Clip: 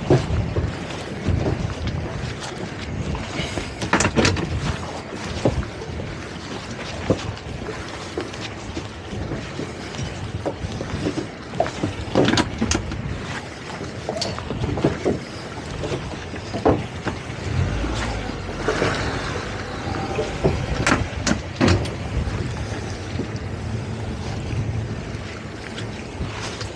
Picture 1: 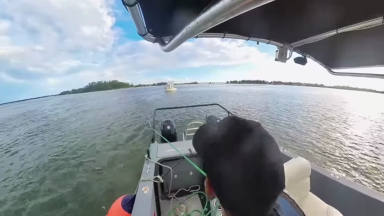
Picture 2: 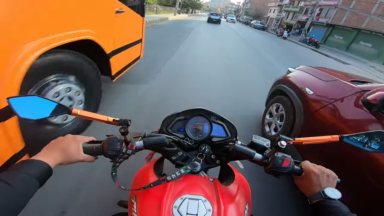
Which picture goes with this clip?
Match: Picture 1